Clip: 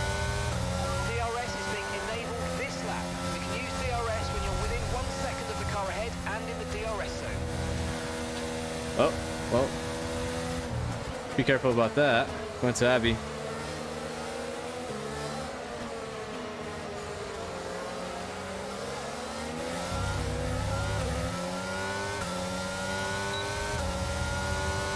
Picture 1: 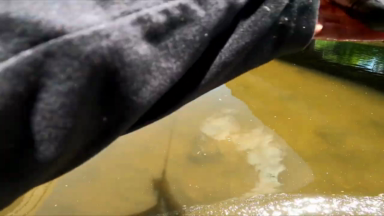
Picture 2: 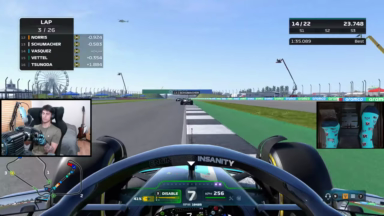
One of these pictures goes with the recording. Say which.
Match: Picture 2